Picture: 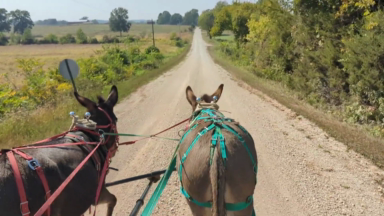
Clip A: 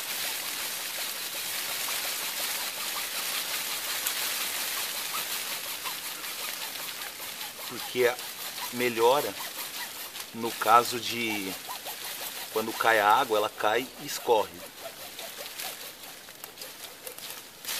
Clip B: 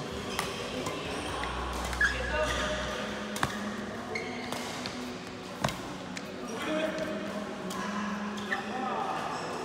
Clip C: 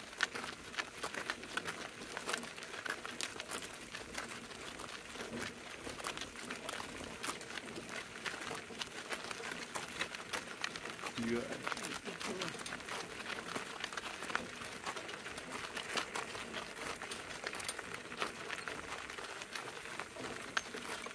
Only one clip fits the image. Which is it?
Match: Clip C